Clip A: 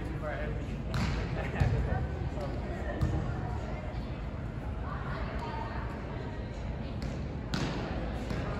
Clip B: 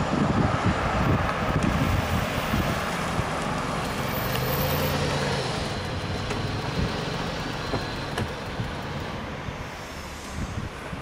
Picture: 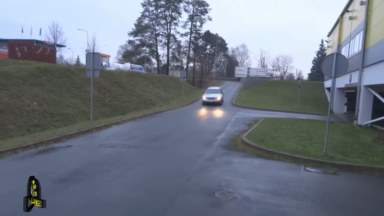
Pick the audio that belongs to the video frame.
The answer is B